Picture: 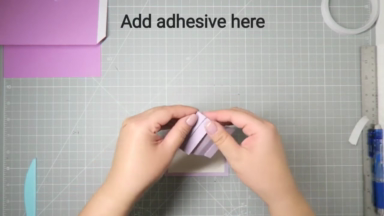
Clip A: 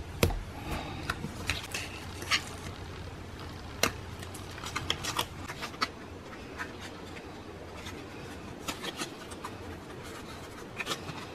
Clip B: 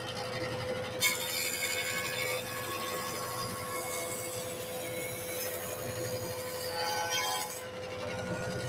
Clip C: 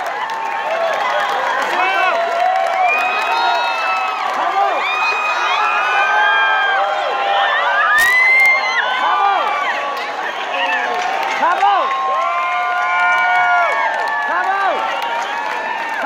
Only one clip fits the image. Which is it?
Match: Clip A